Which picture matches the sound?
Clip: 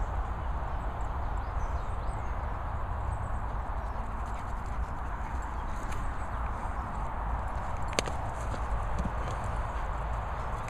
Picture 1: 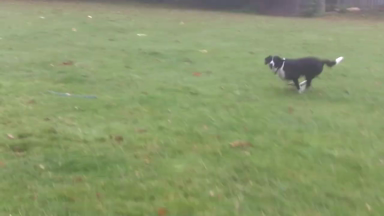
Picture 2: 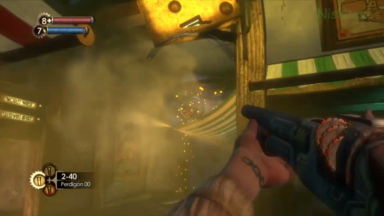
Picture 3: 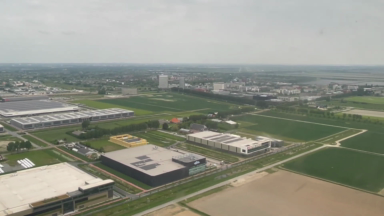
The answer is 1